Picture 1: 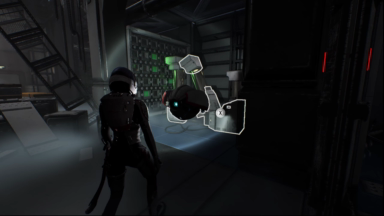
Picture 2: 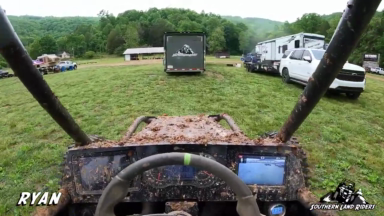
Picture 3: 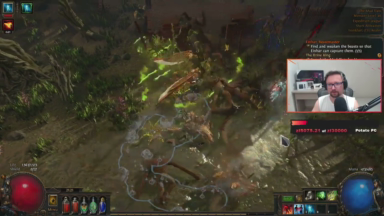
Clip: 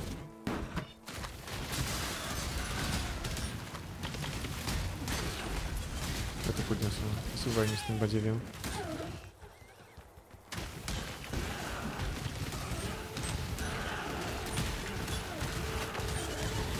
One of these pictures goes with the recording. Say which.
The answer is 3